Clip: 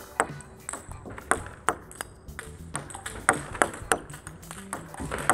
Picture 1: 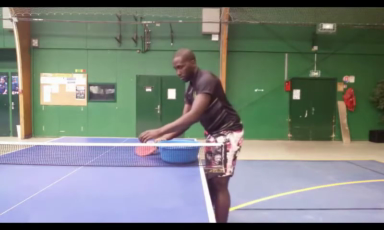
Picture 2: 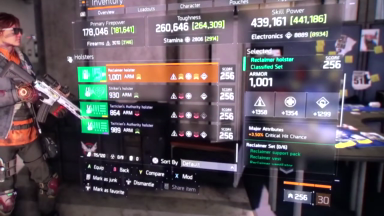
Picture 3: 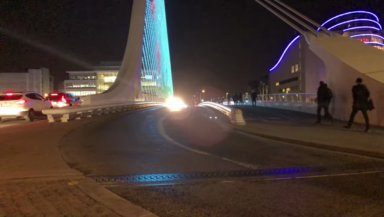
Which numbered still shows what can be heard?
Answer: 1